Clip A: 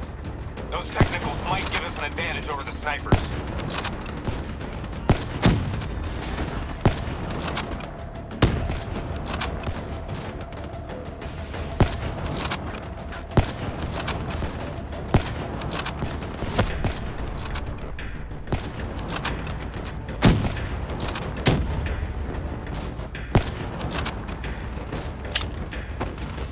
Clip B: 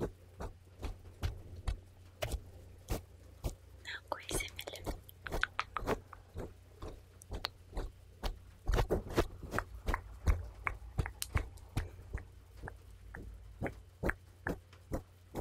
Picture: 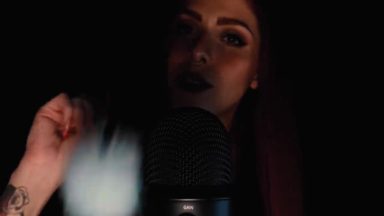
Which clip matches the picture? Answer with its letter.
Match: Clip B